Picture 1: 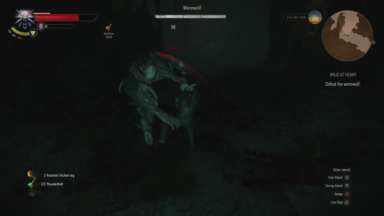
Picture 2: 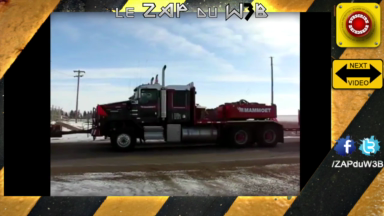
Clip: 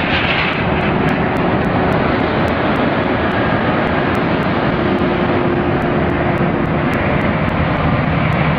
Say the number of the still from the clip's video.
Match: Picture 2